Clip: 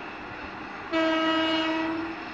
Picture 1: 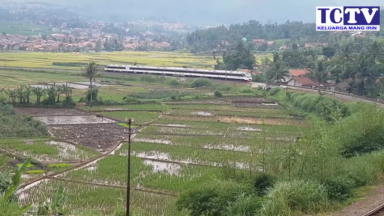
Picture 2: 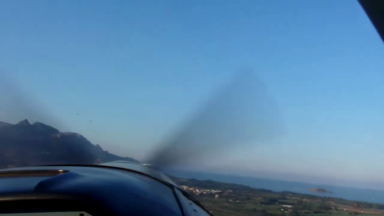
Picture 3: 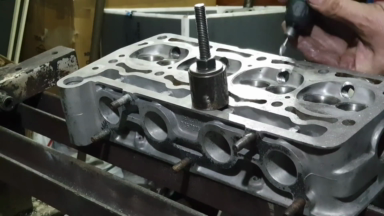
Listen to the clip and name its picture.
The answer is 1